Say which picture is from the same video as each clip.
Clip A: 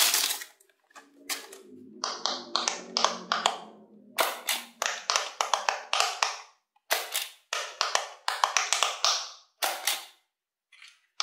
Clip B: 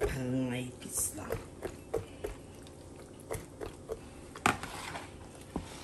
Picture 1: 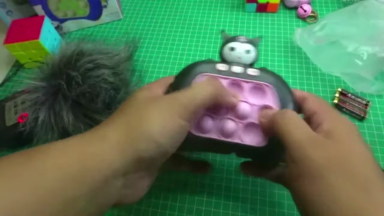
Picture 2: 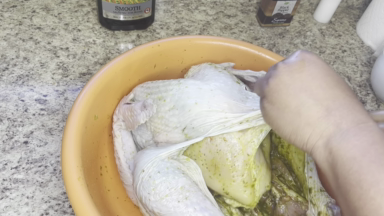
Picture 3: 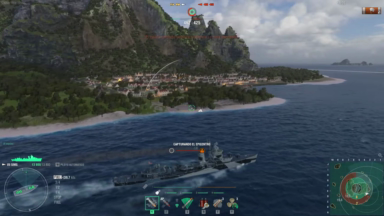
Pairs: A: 1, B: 2